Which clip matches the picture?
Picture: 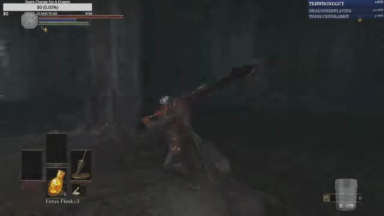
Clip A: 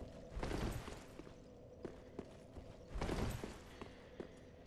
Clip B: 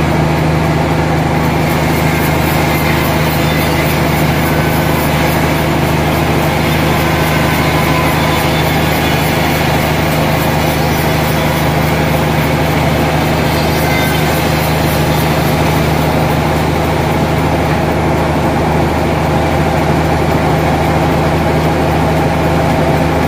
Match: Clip A